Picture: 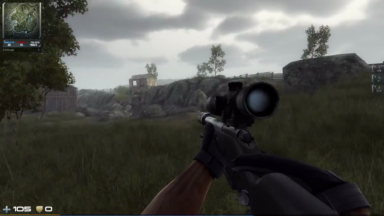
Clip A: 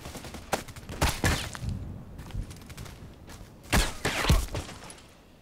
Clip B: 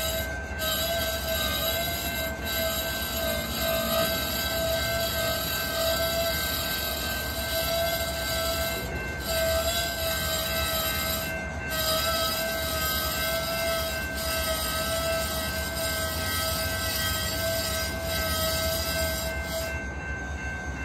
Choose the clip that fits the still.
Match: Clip A